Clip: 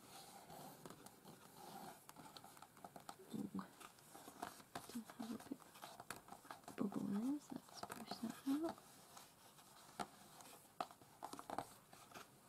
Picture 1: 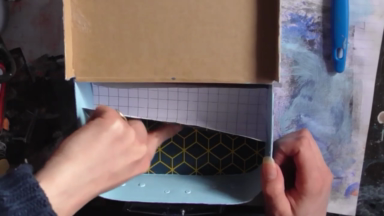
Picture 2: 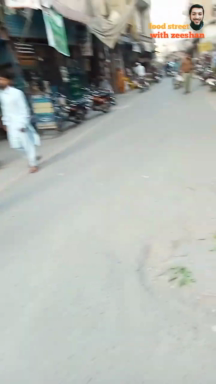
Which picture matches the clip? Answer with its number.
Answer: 1